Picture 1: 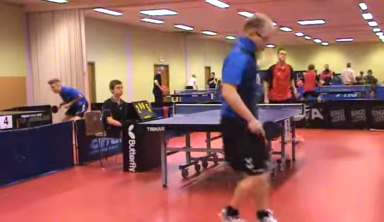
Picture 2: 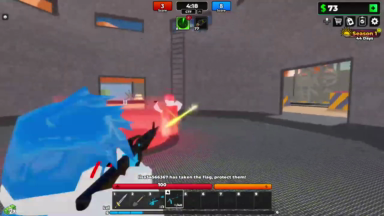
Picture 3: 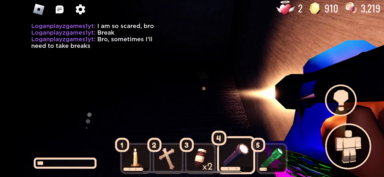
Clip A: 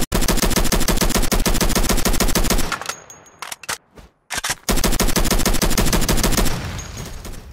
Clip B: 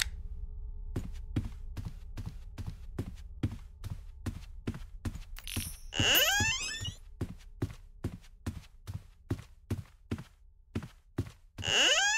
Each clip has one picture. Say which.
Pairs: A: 2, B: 3